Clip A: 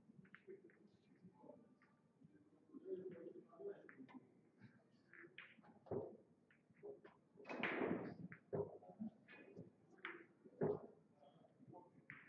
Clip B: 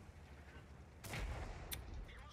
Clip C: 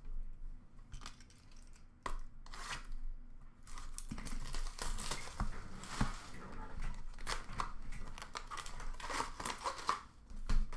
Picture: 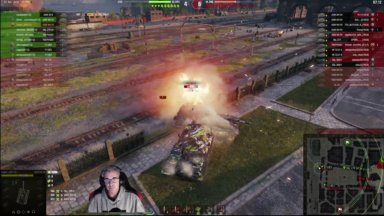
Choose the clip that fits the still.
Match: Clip B